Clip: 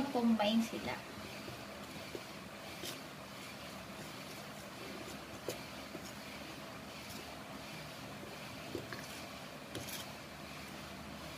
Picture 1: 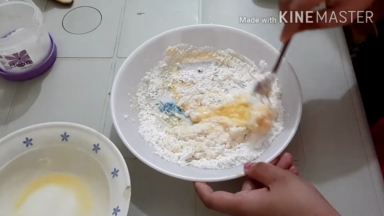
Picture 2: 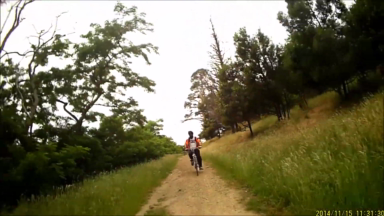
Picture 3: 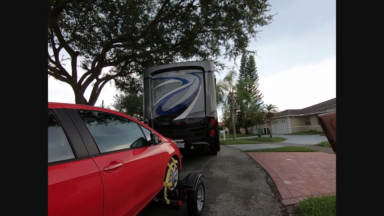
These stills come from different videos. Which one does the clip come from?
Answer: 1